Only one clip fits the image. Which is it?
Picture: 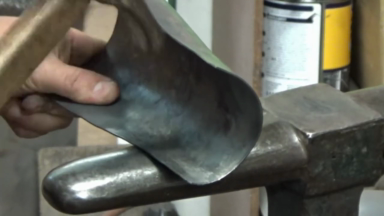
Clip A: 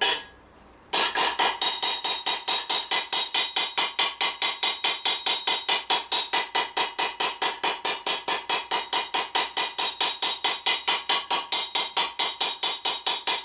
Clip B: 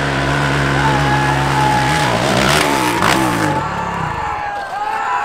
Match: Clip A